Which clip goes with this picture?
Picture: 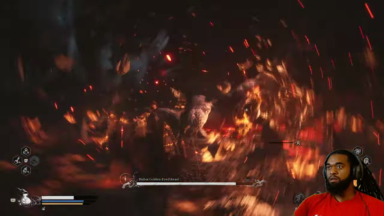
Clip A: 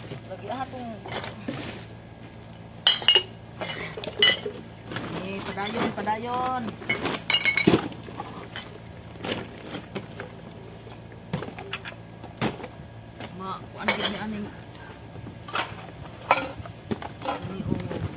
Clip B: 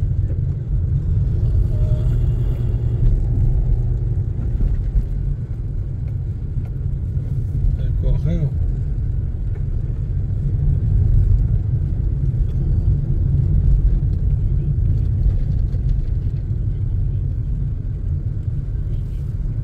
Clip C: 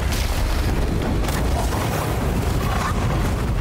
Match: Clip C